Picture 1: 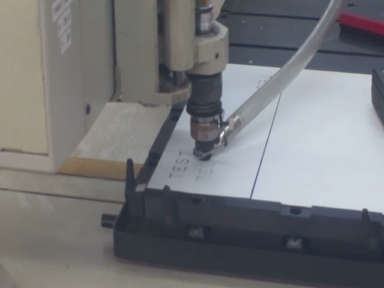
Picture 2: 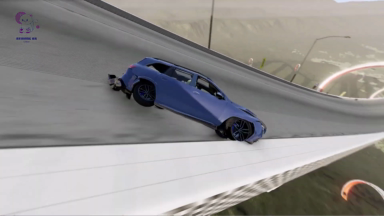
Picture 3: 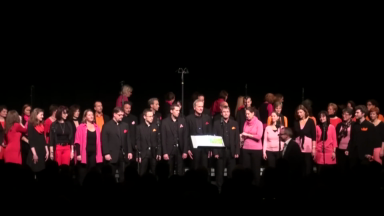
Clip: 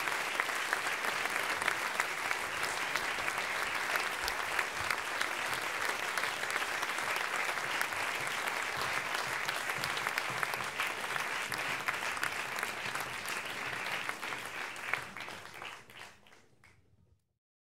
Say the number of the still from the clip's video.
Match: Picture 3